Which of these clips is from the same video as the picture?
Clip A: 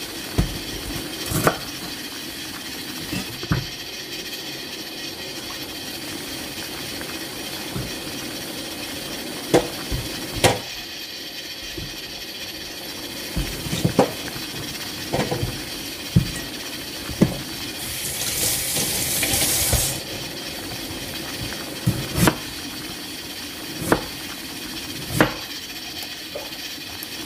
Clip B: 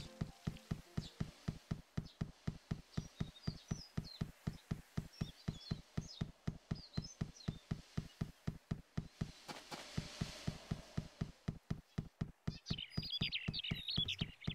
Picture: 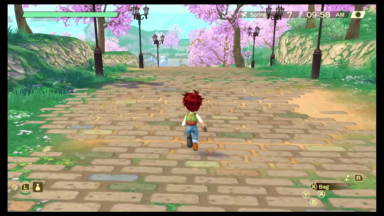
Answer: B